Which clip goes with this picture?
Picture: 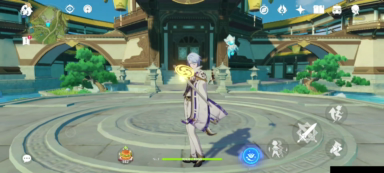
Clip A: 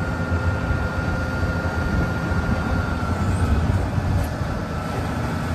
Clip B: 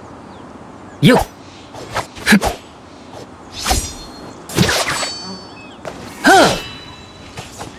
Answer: B